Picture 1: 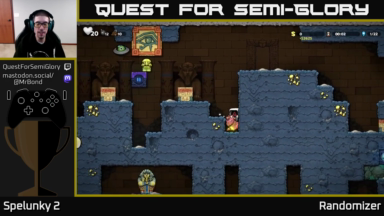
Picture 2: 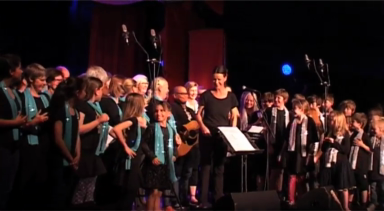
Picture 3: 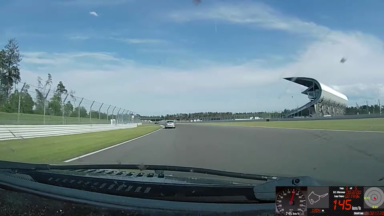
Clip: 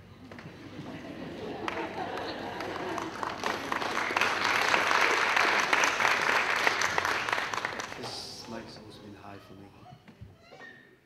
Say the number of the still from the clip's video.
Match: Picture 2